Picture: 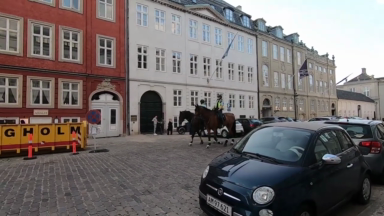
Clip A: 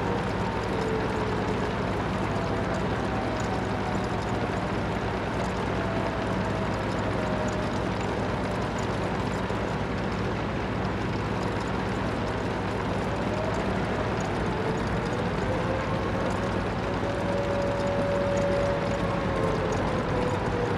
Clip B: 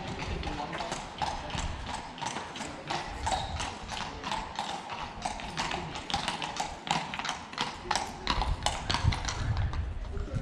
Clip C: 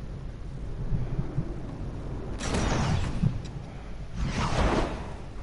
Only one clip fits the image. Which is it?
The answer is B